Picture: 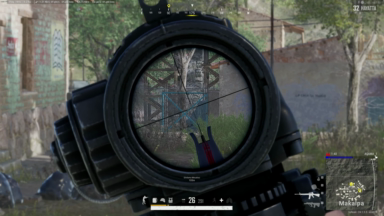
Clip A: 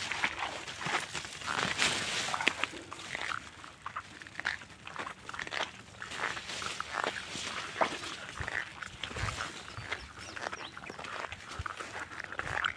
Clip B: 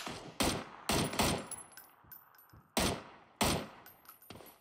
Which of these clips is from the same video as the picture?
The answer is B